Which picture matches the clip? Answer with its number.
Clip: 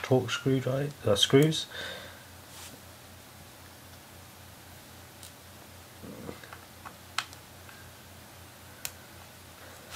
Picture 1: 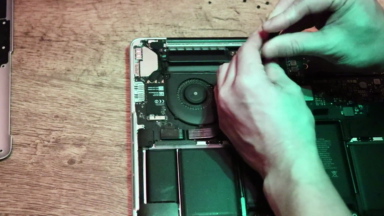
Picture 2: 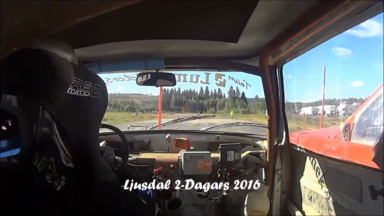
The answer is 1